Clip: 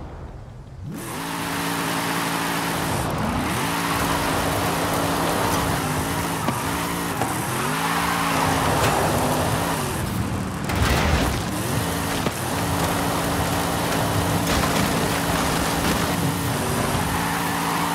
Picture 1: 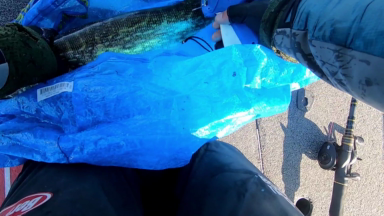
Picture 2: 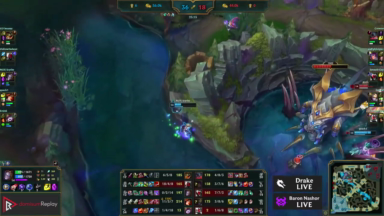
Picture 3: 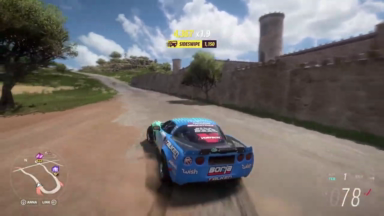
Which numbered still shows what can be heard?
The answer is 3